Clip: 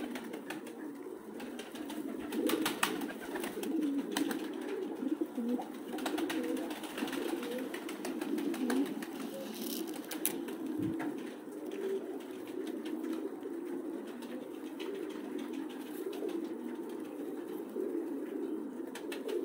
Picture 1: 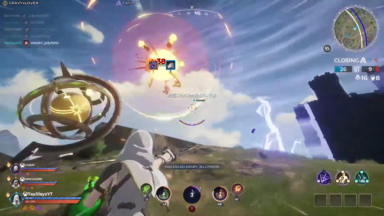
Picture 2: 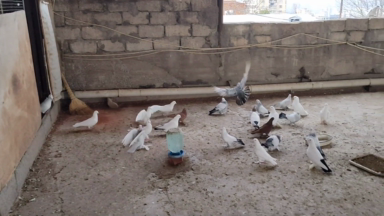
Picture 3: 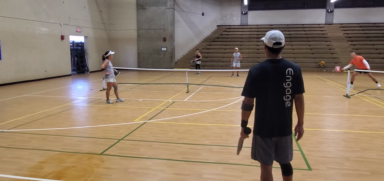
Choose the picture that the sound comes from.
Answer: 2